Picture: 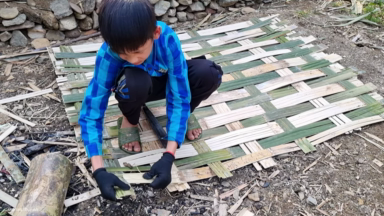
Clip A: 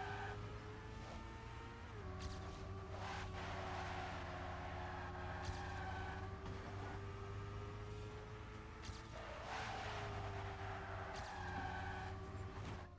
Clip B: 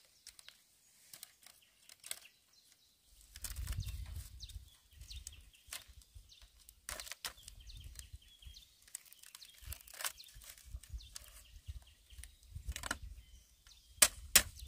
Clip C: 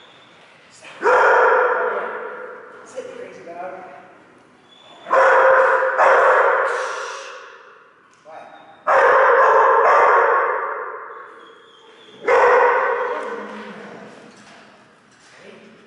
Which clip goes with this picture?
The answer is B